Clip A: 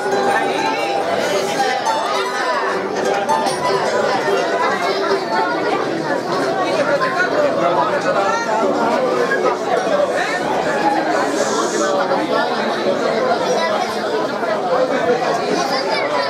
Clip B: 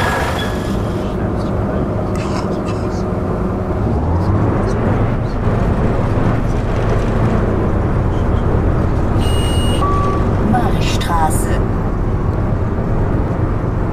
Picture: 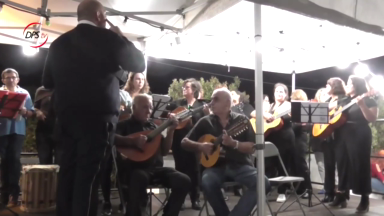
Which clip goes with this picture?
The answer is A